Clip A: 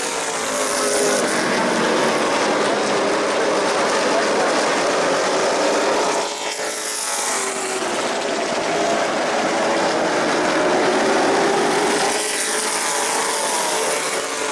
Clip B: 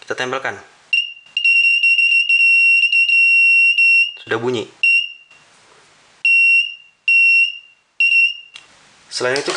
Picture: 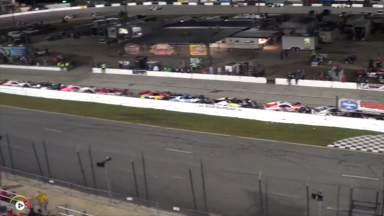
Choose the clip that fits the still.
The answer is A